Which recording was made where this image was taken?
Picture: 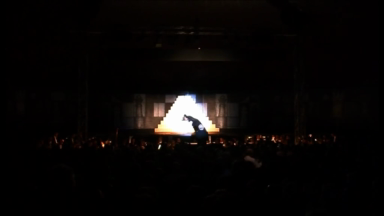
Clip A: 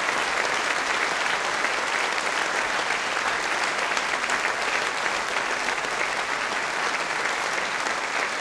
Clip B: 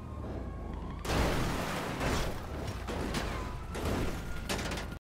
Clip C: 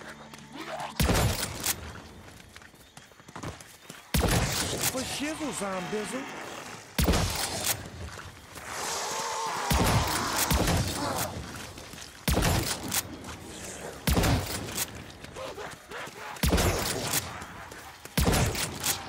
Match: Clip A